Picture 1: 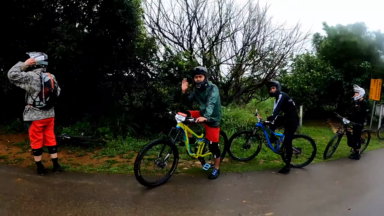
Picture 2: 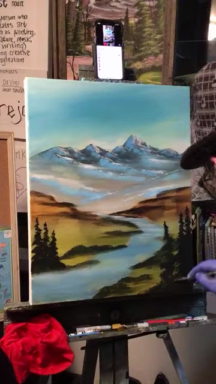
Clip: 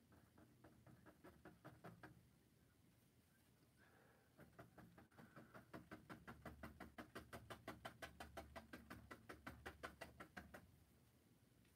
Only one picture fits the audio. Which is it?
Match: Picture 2